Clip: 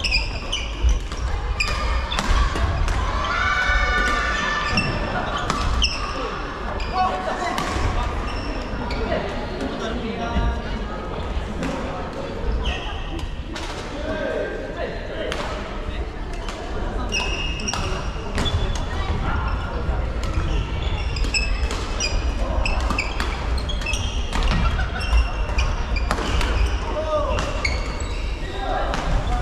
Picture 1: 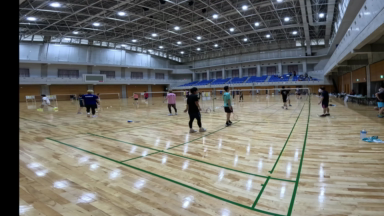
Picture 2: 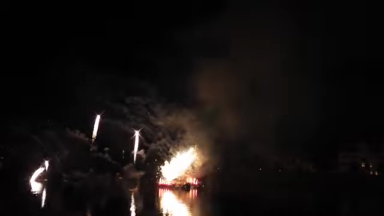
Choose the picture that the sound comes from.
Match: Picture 1